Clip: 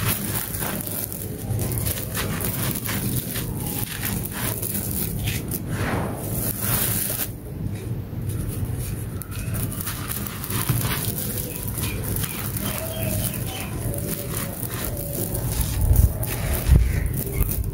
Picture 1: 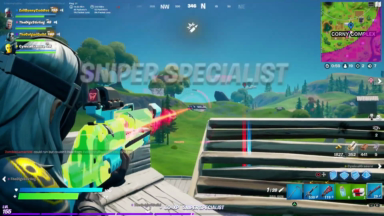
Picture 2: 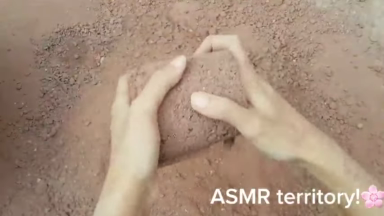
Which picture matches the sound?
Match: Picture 2